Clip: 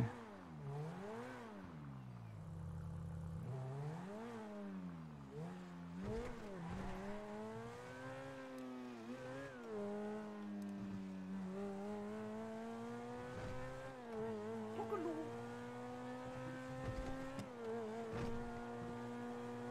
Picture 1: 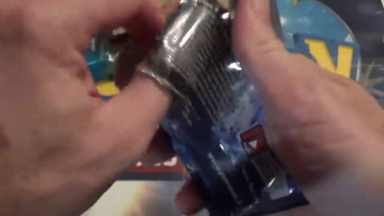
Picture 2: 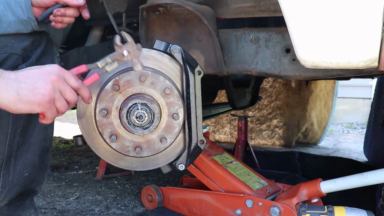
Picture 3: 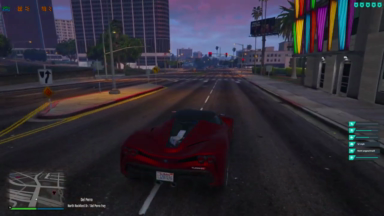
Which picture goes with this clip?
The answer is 3